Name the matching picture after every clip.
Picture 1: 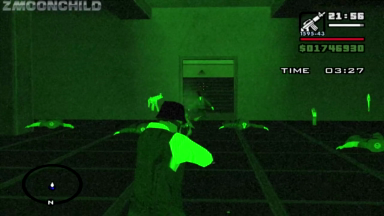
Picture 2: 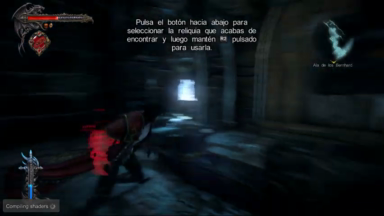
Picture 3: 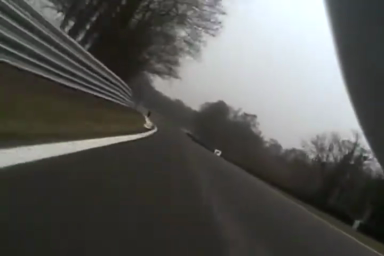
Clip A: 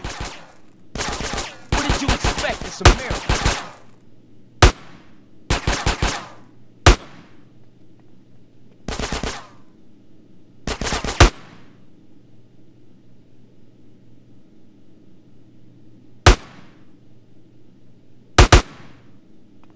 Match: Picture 1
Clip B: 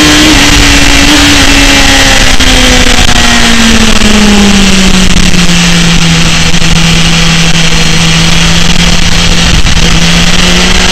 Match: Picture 3